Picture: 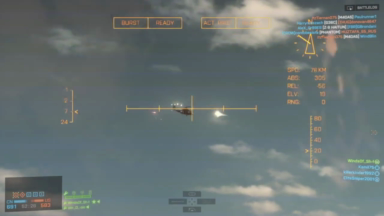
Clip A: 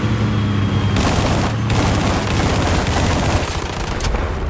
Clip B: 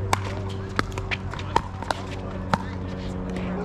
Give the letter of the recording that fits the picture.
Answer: A